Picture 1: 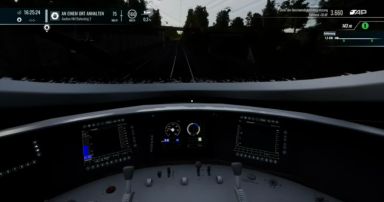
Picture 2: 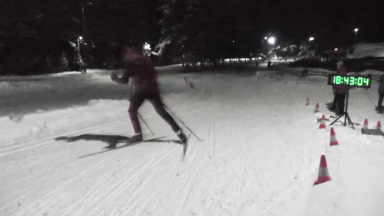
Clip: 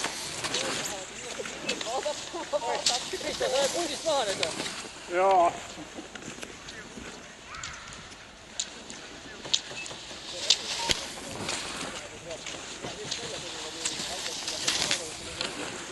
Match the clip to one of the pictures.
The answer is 2